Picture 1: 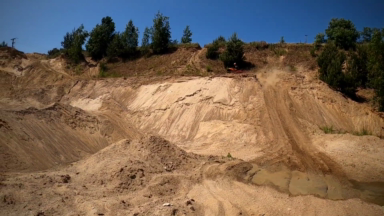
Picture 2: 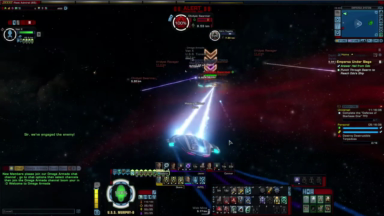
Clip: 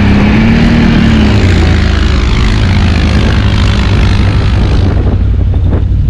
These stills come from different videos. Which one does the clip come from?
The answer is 1